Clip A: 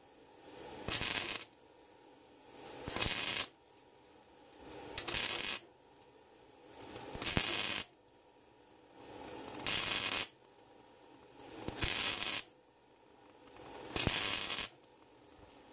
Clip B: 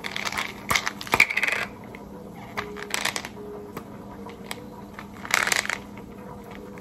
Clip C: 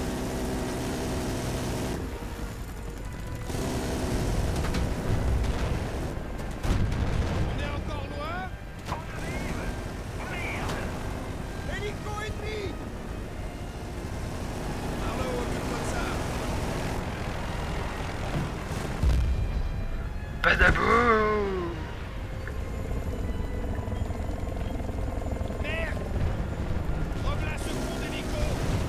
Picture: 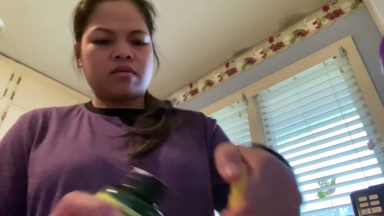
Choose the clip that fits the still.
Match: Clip B